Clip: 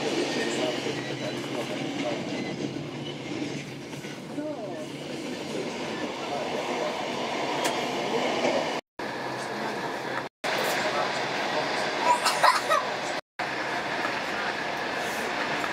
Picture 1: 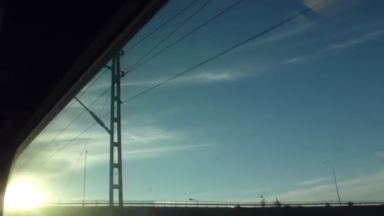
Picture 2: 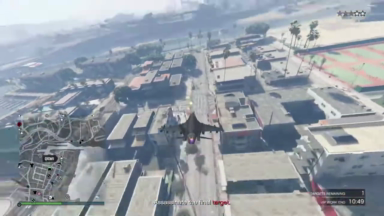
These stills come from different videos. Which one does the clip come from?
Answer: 1